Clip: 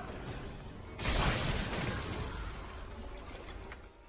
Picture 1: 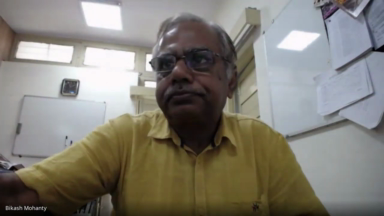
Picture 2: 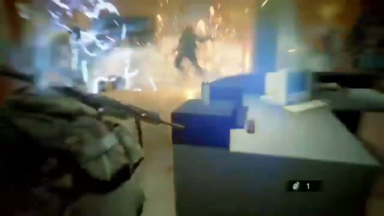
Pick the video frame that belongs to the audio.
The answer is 2